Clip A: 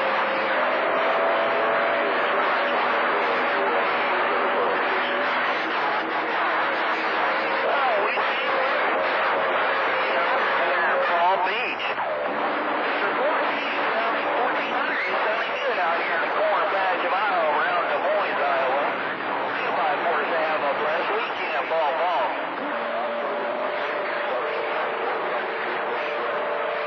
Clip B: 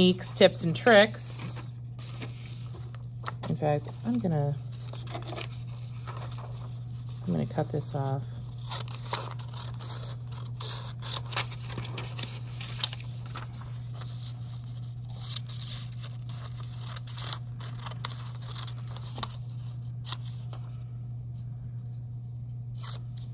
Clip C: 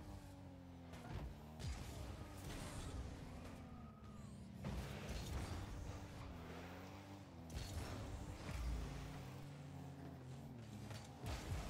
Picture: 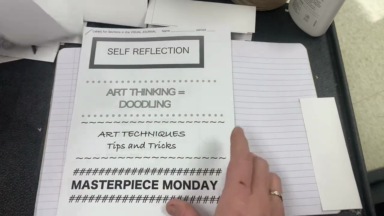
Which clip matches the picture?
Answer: B